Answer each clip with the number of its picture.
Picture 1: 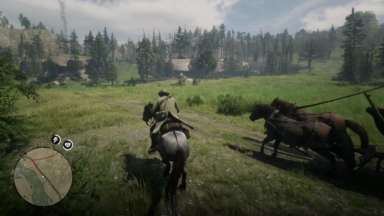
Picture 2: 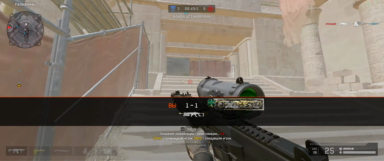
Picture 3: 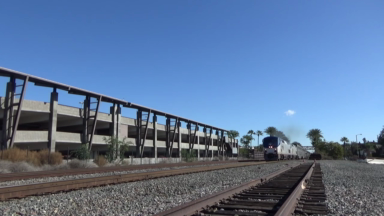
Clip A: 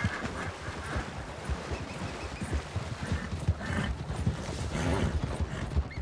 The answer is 1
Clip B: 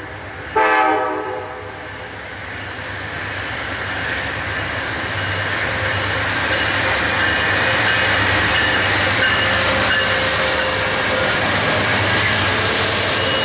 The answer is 3